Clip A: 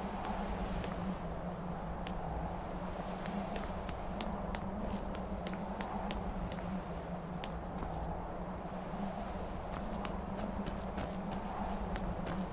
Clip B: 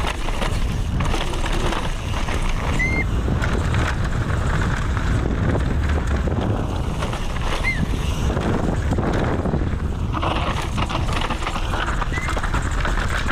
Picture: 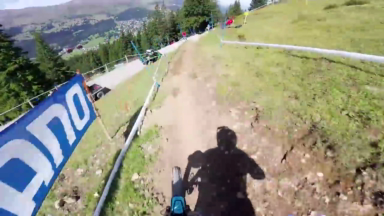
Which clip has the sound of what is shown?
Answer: B